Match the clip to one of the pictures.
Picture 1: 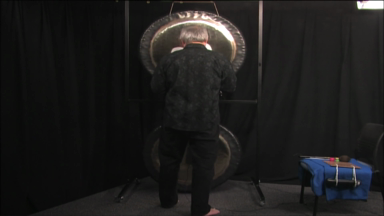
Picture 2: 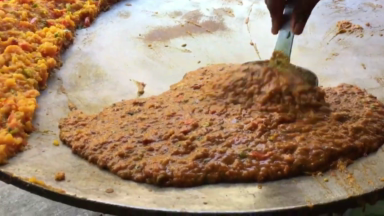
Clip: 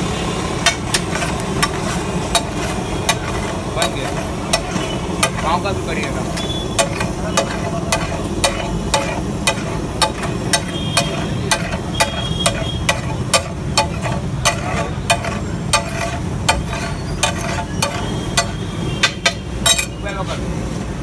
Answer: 2